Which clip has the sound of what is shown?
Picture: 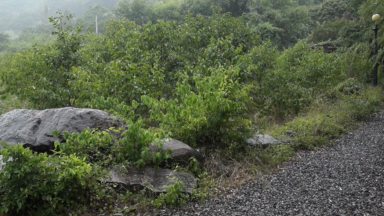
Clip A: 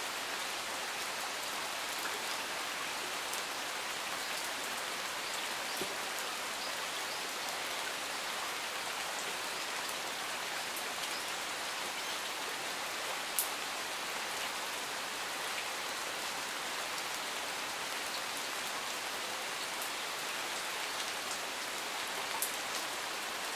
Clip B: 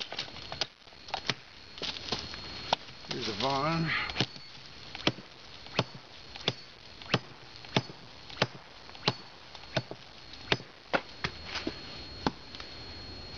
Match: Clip A